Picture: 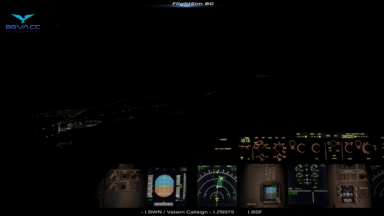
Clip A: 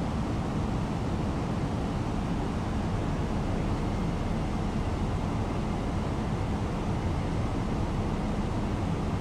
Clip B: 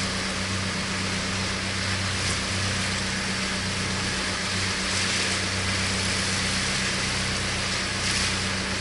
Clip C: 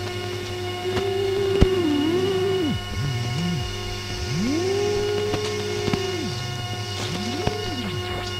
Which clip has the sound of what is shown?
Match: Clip A